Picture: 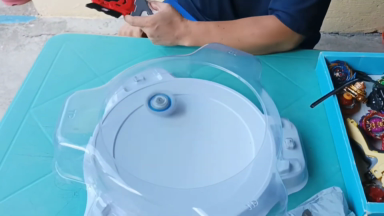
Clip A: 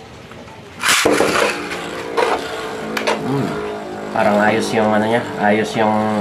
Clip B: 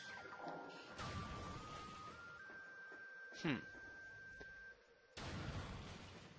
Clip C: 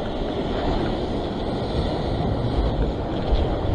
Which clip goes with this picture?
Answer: A